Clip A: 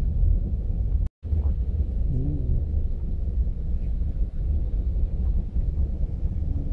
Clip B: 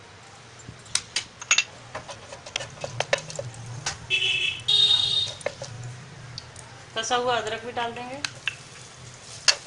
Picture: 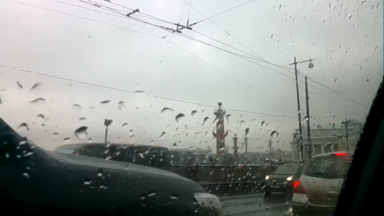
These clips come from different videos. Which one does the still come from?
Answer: A